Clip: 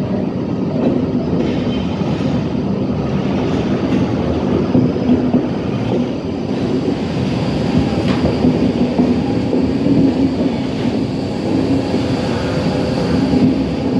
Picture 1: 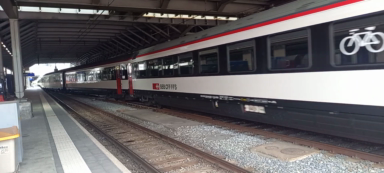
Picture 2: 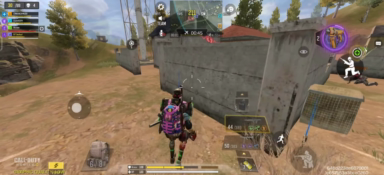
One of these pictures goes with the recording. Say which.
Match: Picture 1